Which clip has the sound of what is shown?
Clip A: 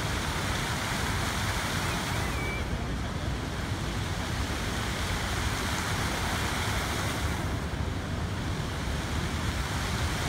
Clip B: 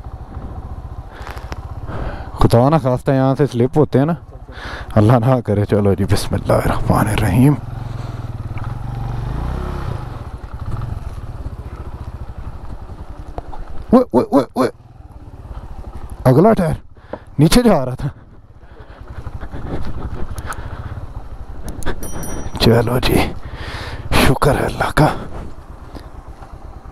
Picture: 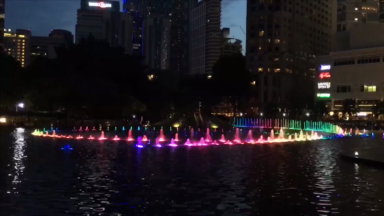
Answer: A